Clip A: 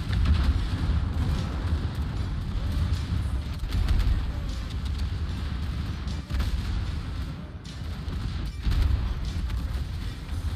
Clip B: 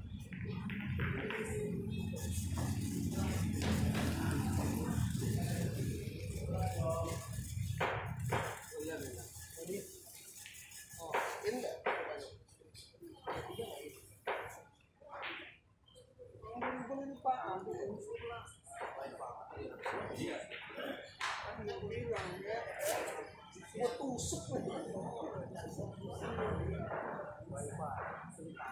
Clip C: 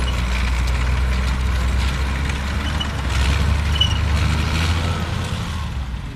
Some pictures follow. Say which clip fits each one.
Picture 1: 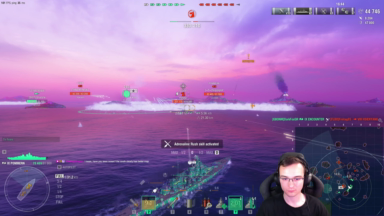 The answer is A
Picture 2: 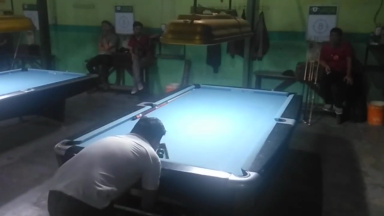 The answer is B